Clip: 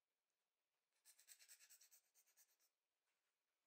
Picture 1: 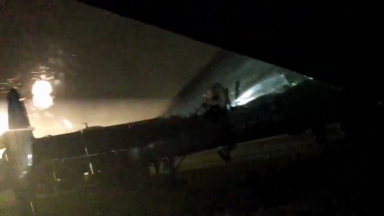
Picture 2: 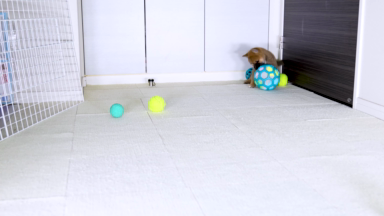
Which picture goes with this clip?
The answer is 2